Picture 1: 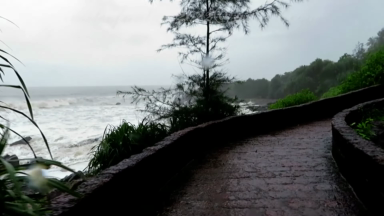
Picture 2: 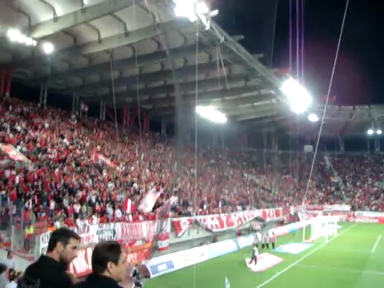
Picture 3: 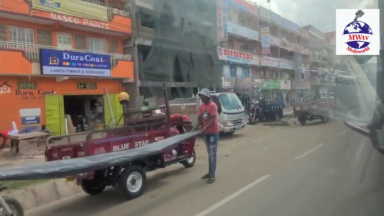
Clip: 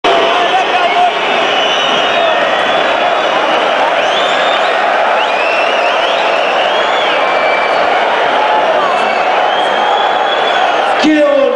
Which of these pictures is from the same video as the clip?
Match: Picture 2